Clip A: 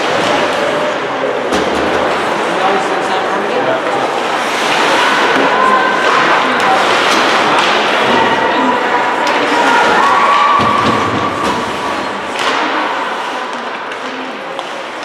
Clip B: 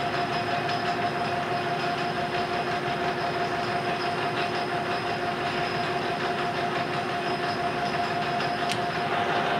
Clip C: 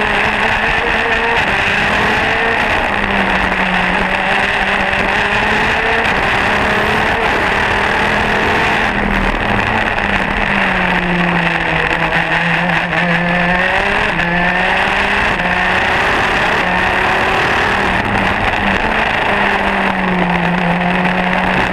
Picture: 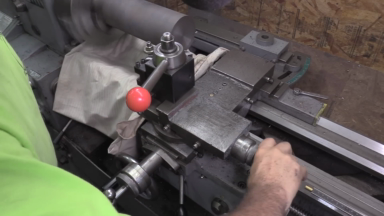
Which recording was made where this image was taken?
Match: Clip B